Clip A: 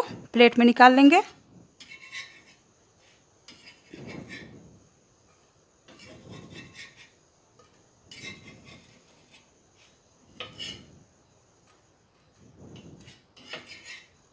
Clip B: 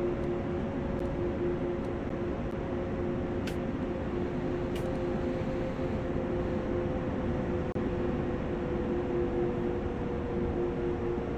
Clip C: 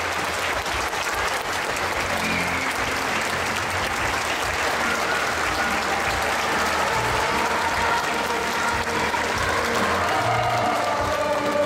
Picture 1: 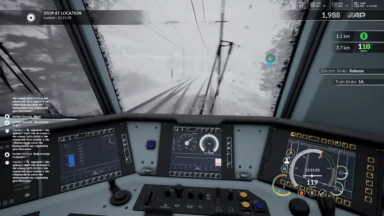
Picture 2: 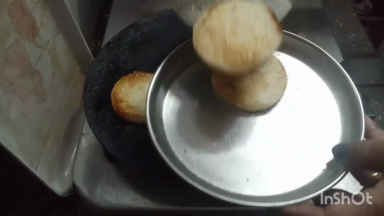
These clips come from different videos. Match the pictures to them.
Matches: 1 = B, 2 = A